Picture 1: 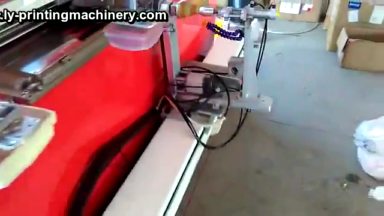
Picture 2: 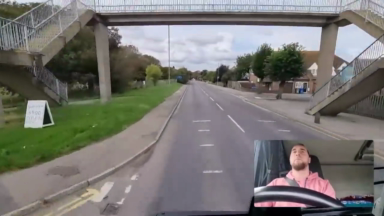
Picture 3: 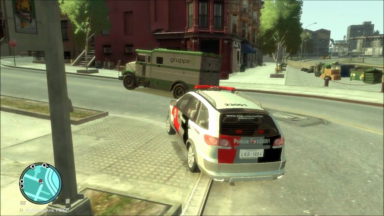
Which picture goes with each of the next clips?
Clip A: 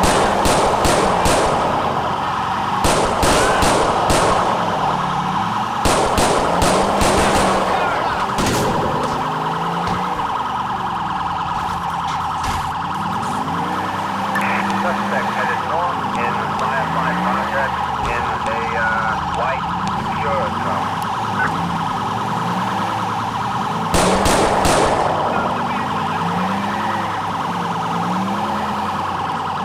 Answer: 3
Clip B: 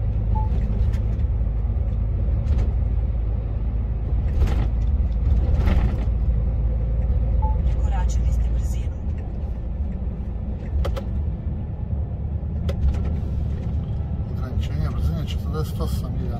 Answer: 2